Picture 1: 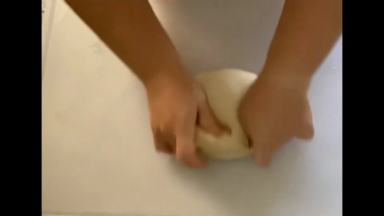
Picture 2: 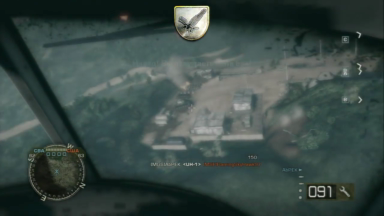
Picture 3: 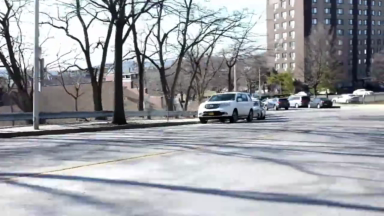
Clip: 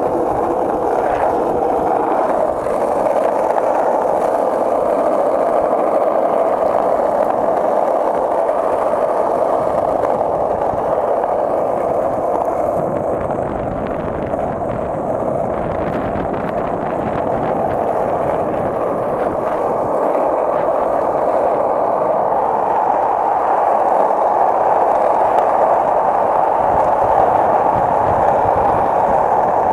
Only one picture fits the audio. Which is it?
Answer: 3